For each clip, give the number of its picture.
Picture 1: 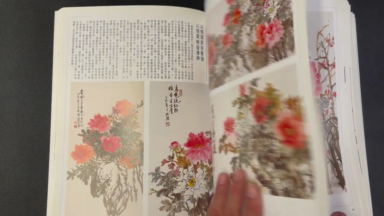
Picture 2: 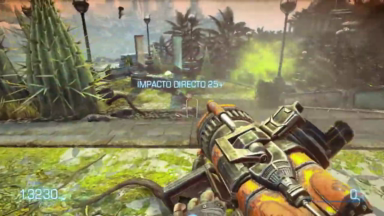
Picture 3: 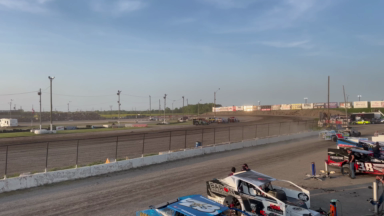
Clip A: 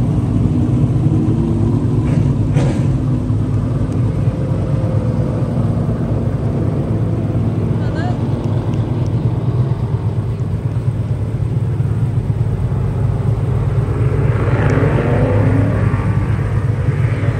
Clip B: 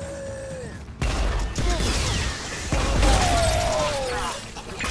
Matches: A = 3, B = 2